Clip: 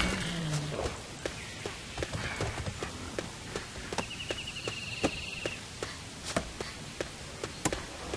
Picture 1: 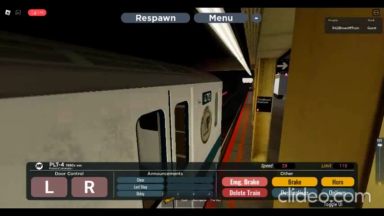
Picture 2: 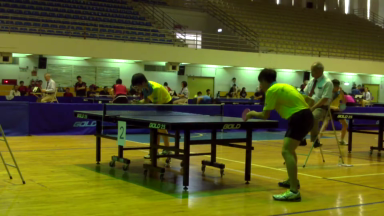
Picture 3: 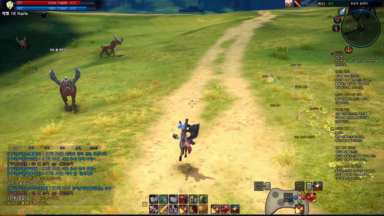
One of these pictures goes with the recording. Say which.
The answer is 3